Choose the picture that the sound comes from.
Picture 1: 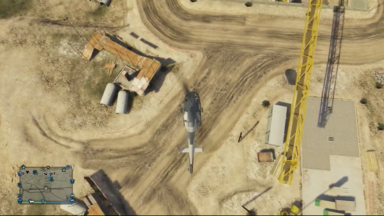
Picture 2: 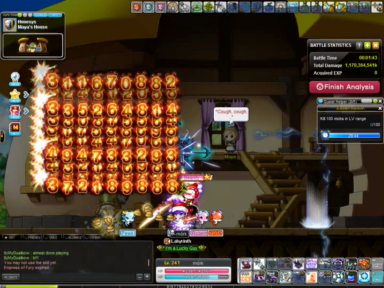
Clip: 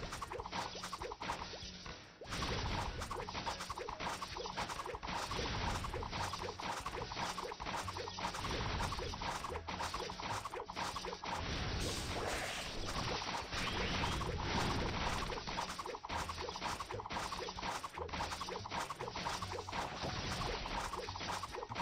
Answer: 2